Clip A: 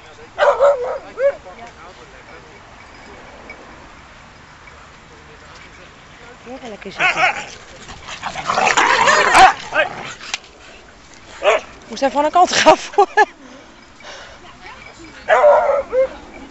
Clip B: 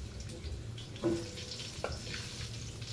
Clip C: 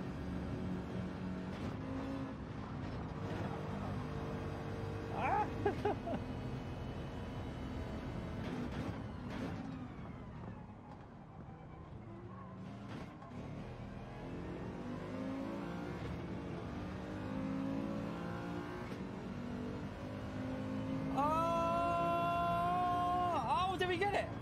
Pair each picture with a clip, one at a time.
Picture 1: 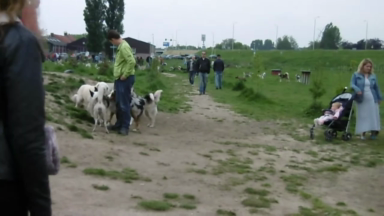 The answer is A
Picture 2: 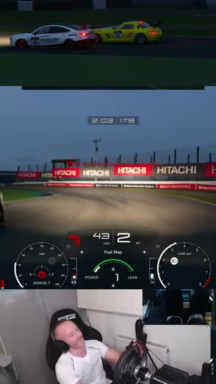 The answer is C